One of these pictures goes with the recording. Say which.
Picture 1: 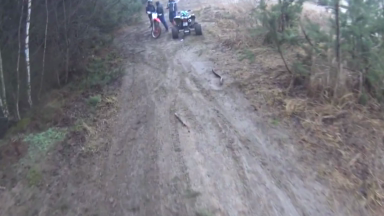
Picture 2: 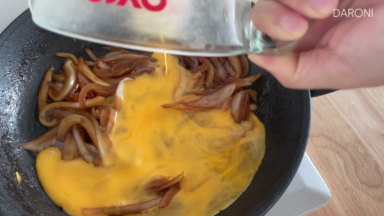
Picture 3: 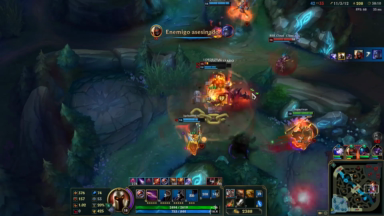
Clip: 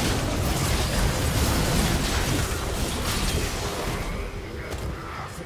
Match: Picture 3